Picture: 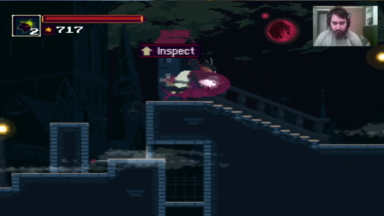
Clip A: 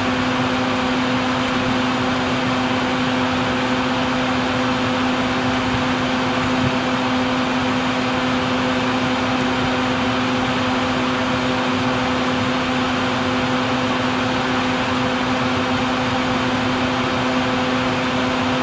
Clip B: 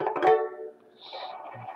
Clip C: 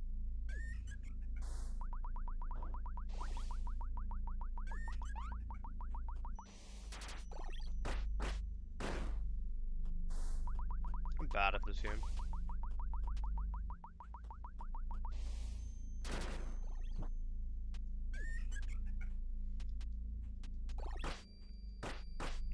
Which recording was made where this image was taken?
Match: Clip C